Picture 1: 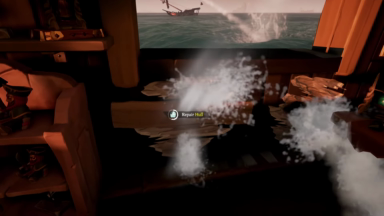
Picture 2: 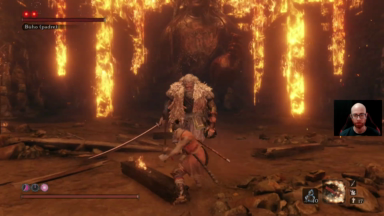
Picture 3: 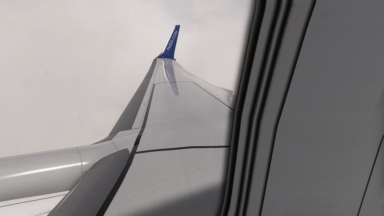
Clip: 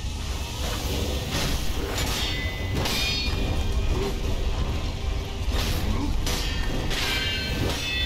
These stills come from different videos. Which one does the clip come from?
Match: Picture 2